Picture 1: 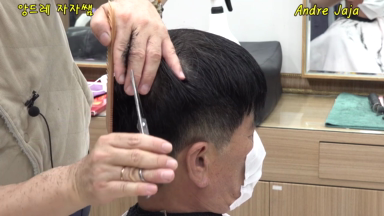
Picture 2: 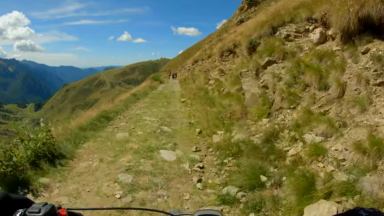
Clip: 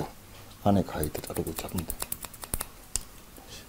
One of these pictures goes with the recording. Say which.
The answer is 1